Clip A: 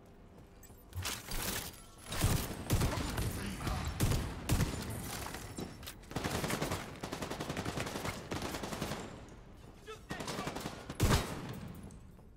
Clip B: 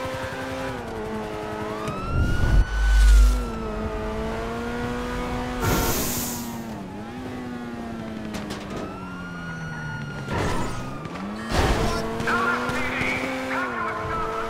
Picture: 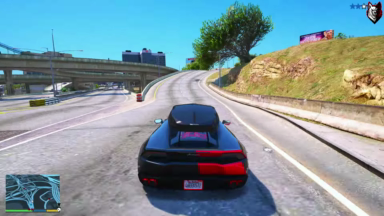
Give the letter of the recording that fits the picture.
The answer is B